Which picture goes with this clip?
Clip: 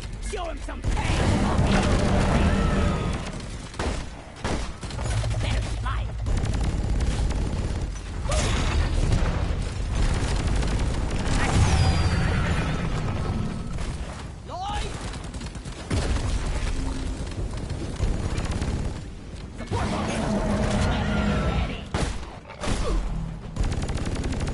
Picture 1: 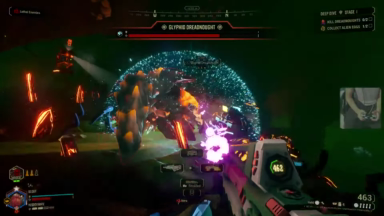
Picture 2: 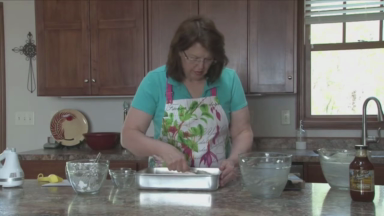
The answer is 1